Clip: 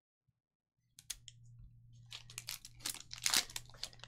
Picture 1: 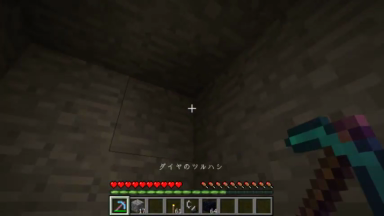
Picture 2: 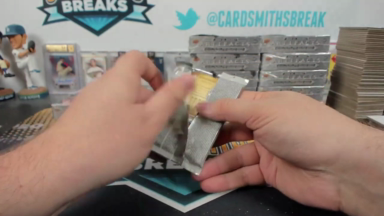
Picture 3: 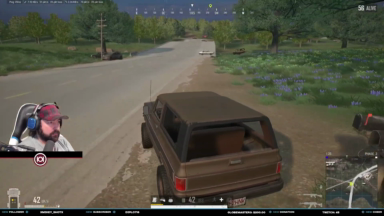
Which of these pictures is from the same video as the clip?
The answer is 2